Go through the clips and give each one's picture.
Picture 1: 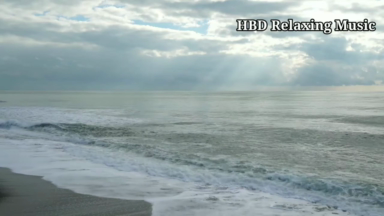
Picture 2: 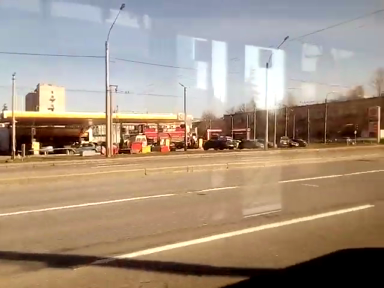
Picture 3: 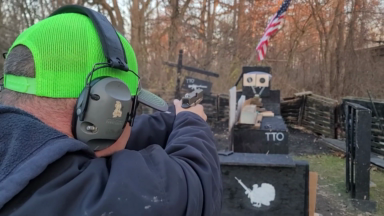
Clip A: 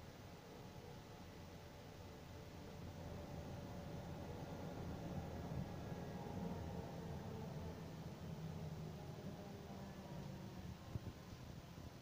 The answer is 2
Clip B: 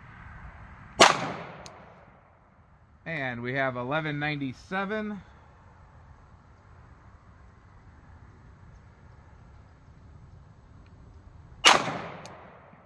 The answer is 3